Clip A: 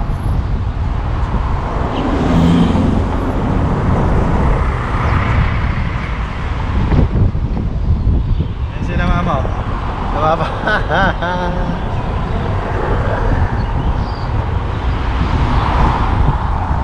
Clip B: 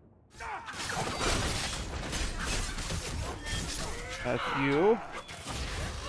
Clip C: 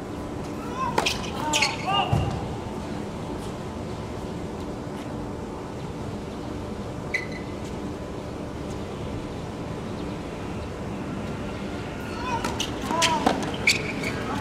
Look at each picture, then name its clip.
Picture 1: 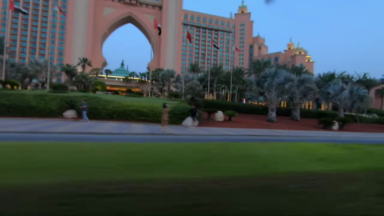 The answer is A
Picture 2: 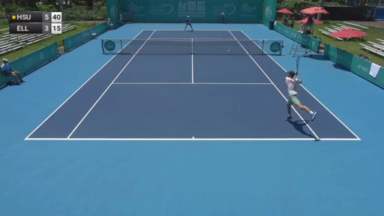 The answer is C